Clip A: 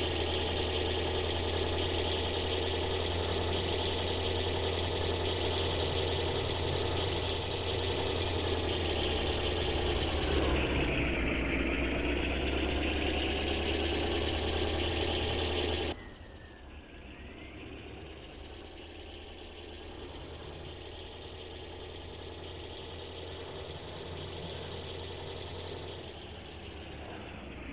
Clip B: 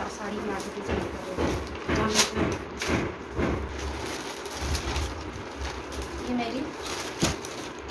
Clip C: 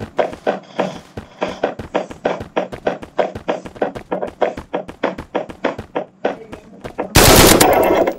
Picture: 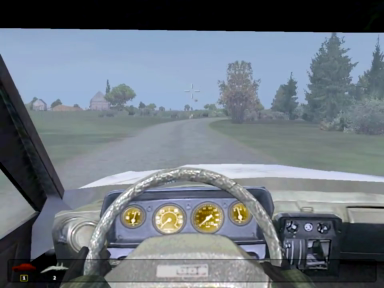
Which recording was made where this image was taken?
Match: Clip A